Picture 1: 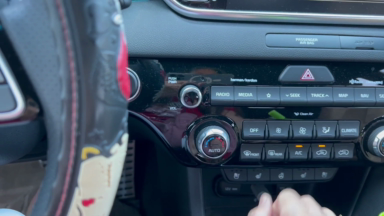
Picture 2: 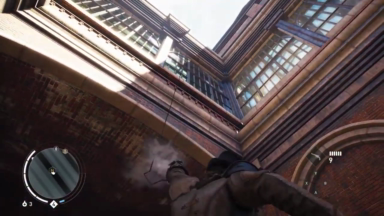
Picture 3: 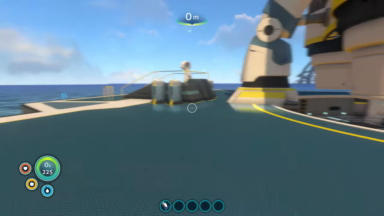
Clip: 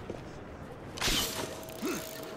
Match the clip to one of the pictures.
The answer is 2